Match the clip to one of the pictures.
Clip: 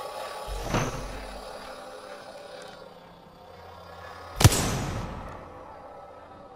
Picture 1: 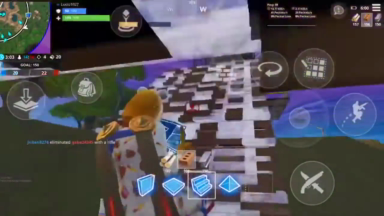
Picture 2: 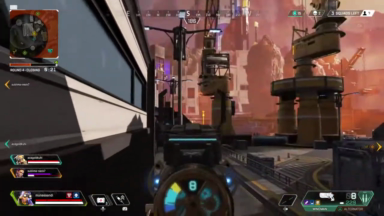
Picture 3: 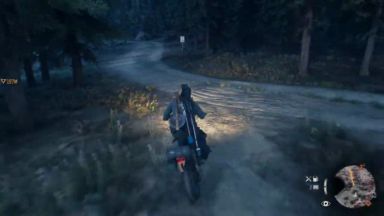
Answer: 2